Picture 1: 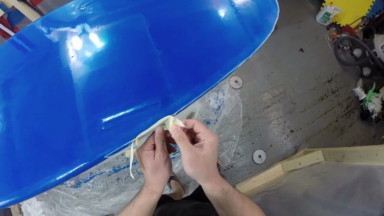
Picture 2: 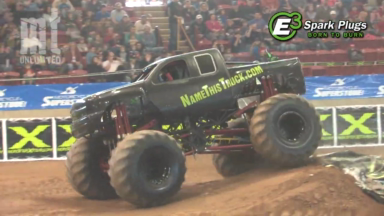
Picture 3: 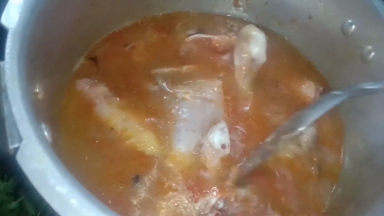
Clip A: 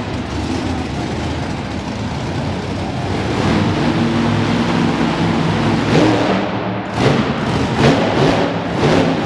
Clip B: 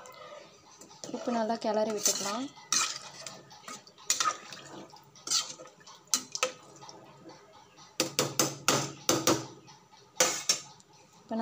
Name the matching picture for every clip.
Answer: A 2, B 3